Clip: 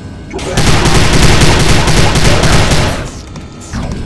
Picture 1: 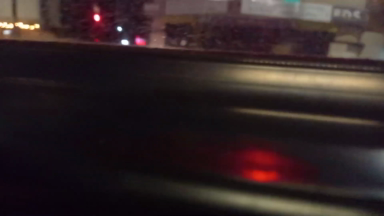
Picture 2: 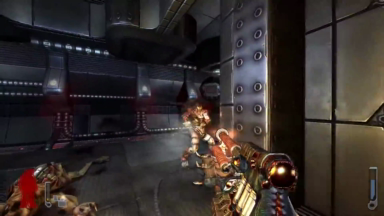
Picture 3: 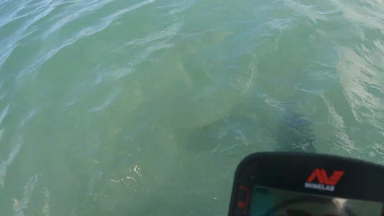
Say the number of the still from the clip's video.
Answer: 2